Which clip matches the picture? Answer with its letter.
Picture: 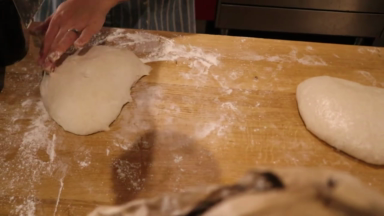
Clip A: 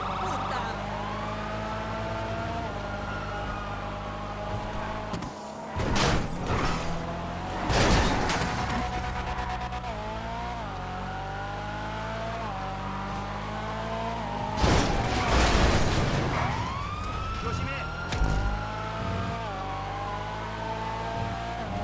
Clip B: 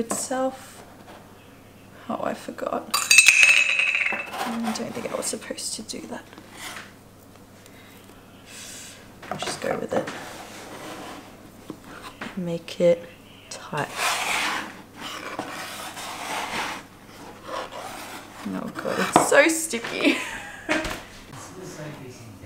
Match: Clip B